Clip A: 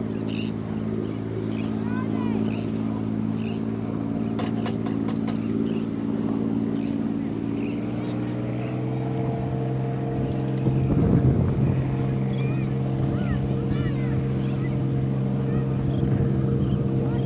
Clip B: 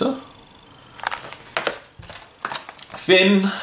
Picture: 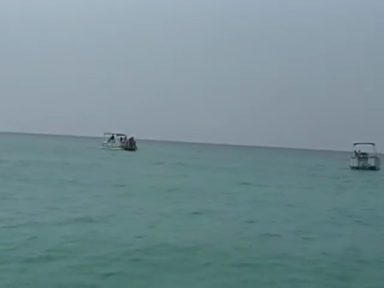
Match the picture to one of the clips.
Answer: A